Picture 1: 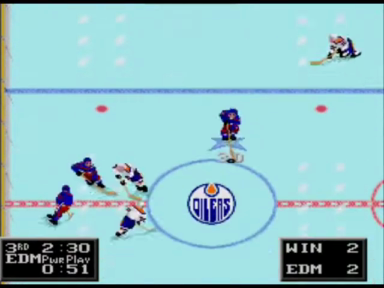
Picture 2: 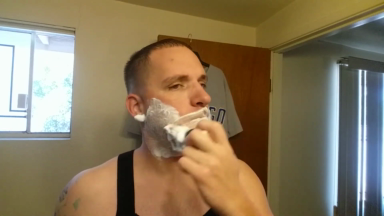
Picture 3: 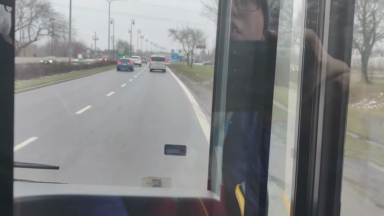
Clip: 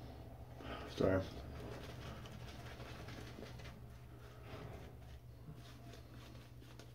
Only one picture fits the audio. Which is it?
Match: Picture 2